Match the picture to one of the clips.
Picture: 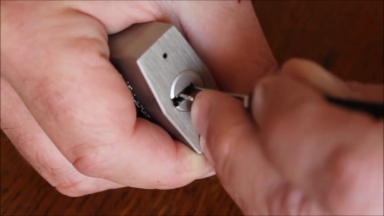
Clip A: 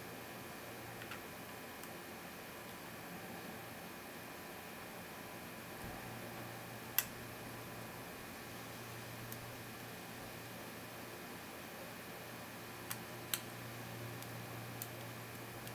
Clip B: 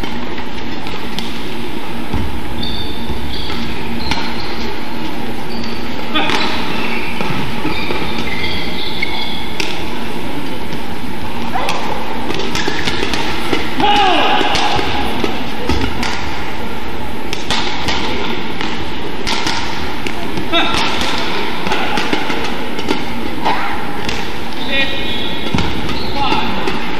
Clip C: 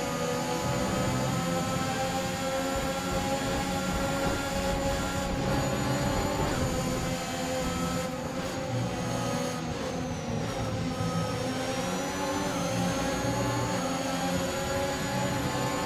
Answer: A